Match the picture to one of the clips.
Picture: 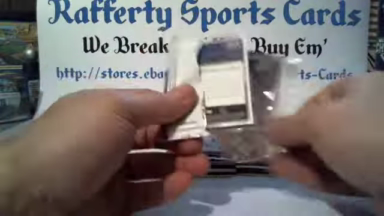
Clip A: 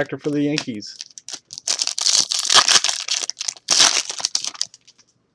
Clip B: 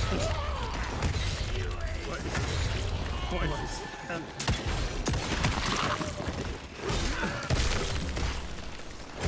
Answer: A